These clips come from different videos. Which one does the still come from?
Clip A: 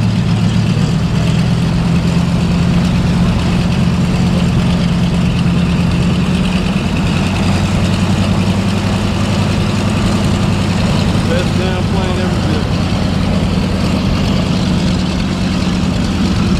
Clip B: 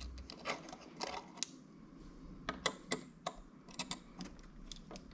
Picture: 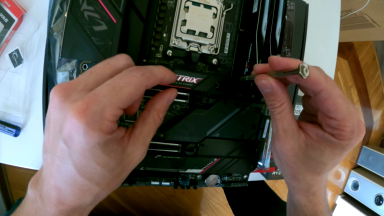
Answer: B